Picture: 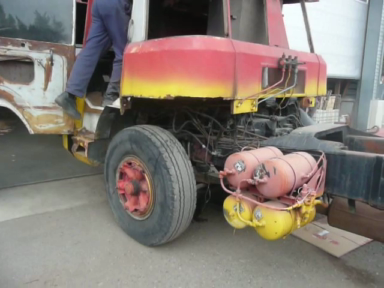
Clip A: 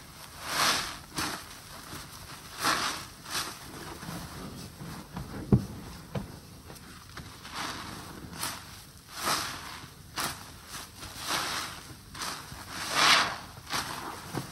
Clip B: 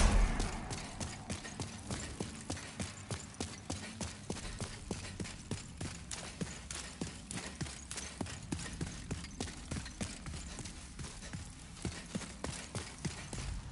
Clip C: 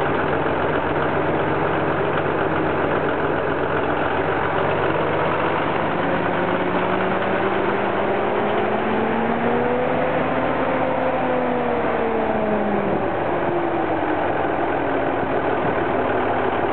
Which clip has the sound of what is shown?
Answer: C